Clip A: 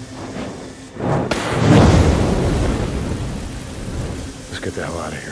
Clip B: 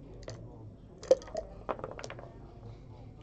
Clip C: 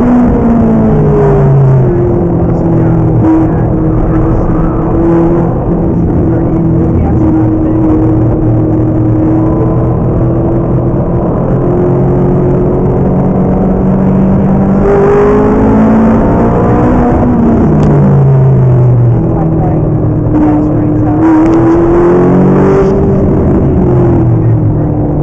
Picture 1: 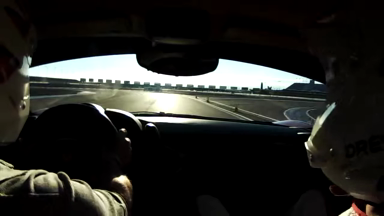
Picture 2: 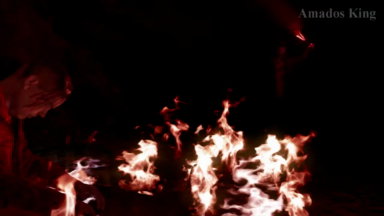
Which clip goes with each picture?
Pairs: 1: C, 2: A